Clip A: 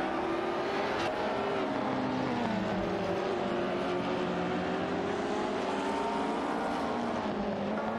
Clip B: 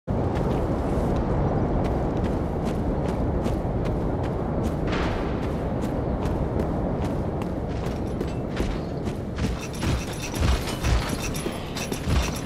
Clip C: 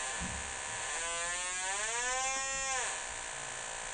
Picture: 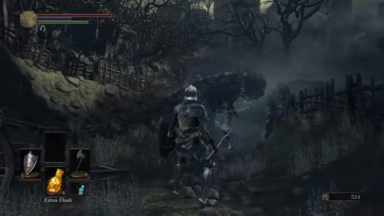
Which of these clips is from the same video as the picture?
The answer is B